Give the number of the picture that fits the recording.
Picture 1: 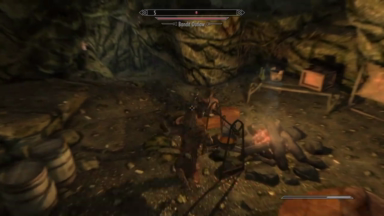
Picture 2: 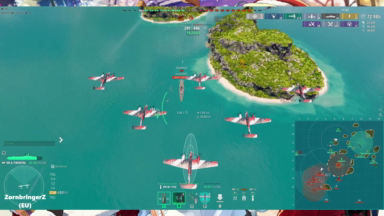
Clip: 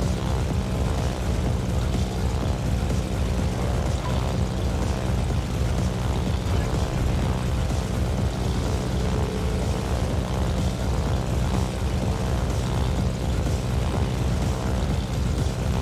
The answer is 2